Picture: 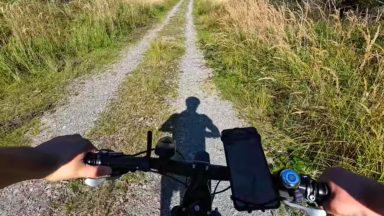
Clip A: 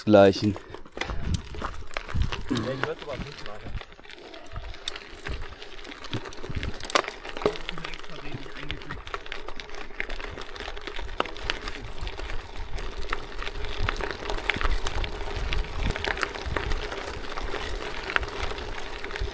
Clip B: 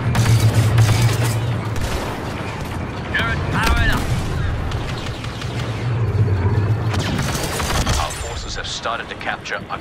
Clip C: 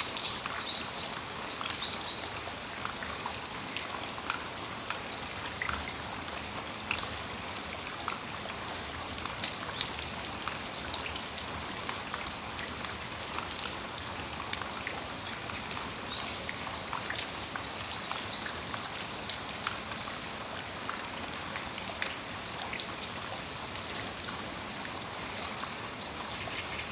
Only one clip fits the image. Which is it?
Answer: A